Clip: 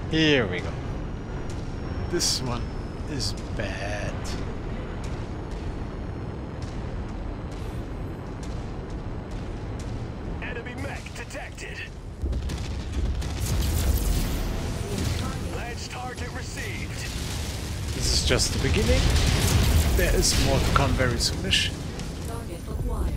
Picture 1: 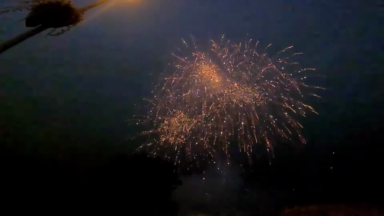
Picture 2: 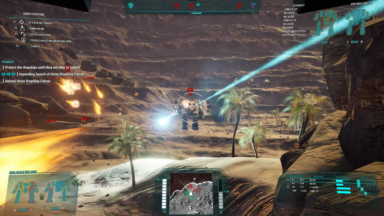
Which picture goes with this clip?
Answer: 2